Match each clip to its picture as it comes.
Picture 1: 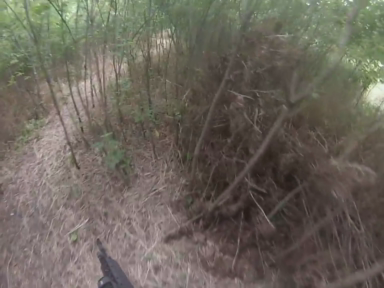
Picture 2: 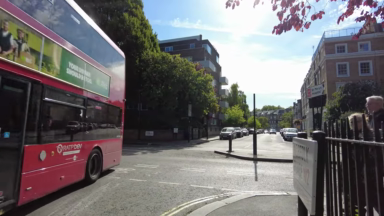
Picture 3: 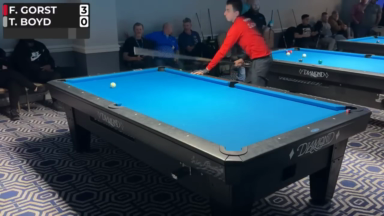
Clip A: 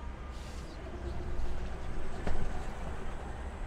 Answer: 2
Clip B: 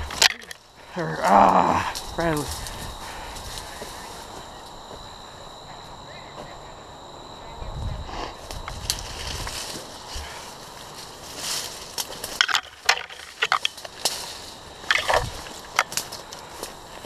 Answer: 1